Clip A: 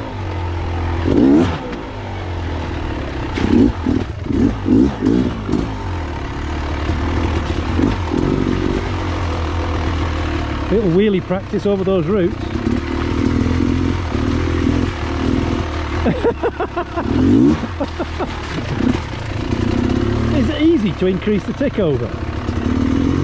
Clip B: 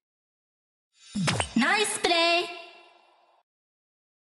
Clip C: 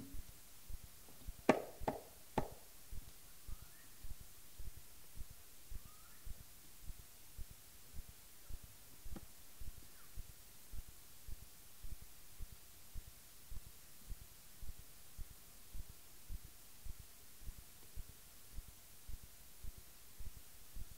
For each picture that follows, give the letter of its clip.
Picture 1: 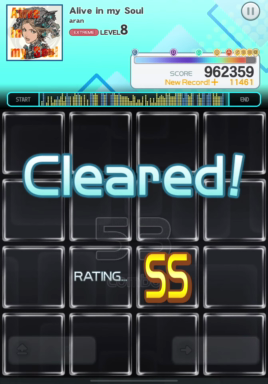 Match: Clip B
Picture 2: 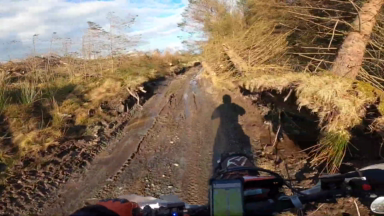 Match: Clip A